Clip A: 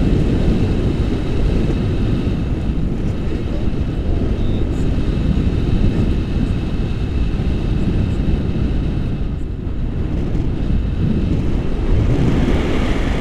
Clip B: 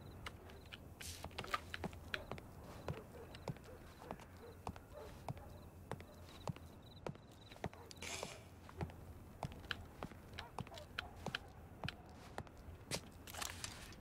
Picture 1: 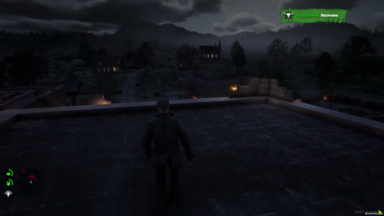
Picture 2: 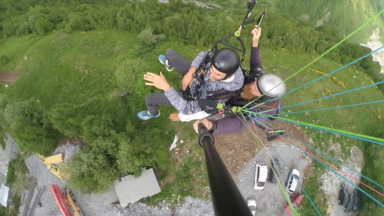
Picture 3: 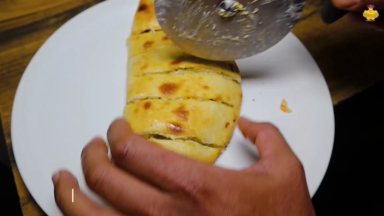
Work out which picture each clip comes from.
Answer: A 2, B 1